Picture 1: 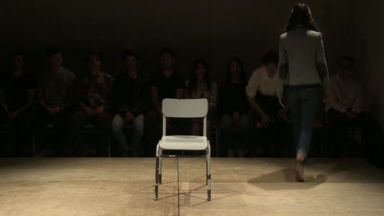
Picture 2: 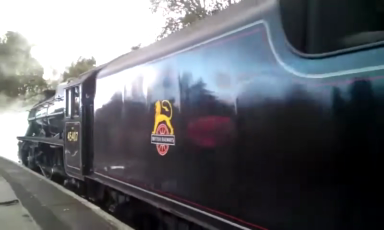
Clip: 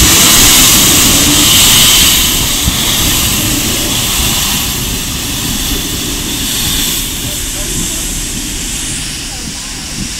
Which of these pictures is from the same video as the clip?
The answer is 2